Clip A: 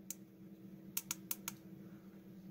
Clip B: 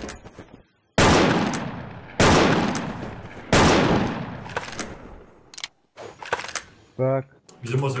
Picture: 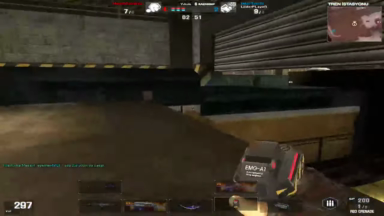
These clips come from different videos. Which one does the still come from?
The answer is B